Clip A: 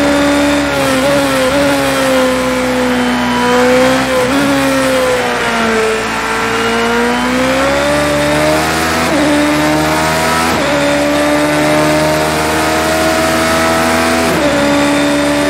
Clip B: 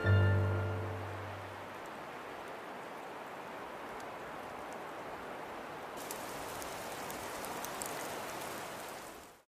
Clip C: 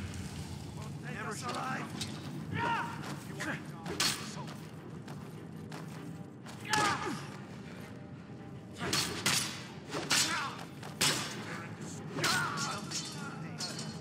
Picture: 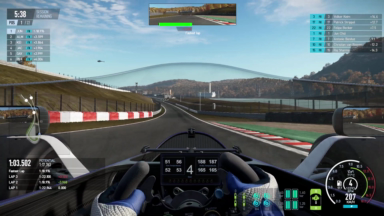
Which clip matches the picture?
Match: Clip A